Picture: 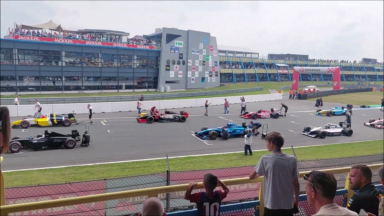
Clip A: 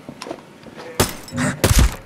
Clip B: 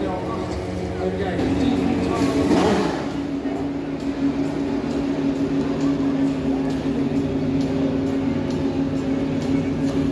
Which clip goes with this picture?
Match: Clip B